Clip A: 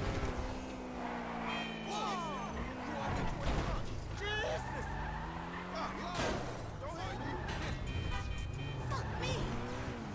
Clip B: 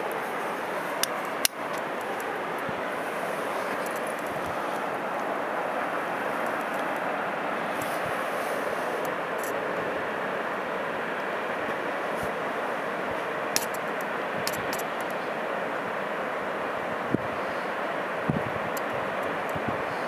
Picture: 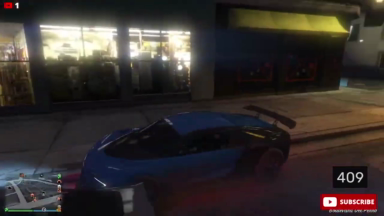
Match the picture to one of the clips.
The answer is A